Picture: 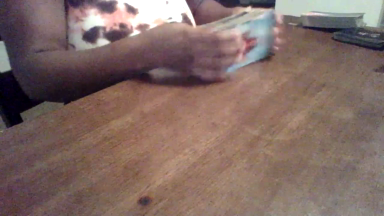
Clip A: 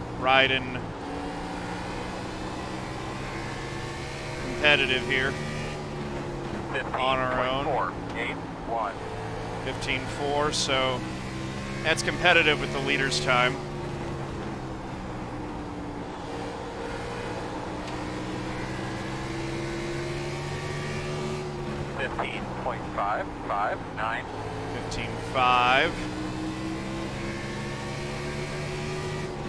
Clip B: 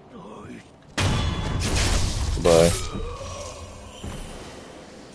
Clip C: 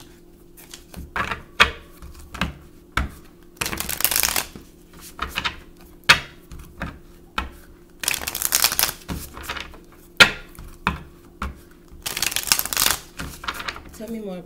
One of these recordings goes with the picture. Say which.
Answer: C